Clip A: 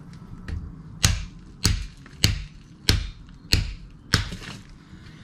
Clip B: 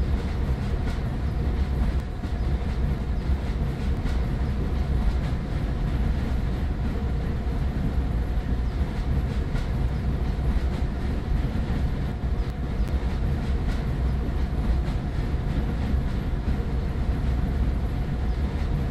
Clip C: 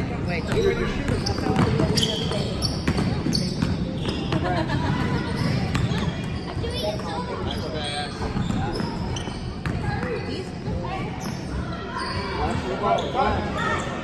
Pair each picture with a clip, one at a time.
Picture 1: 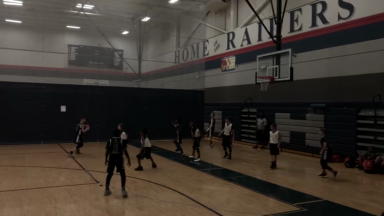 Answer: C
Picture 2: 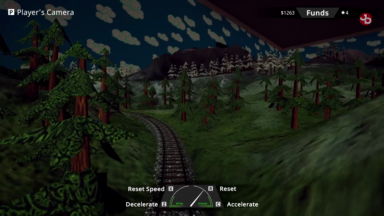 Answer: B